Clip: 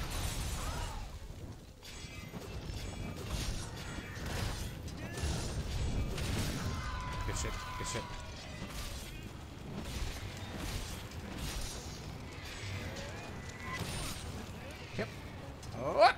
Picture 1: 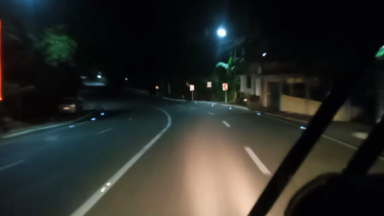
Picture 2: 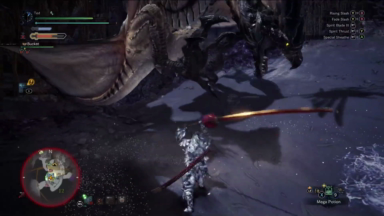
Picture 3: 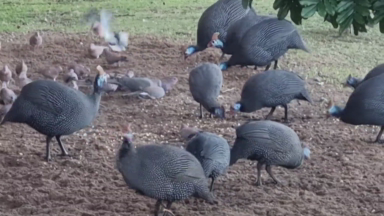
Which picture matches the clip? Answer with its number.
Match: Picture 2